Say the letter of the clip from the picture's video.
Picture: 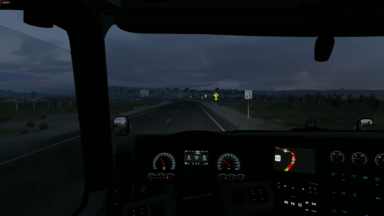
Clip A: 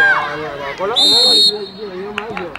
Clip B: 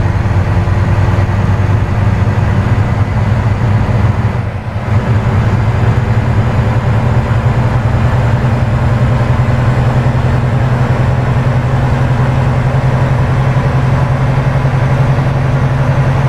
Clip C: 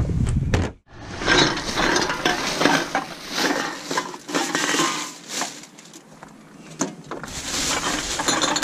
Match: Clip B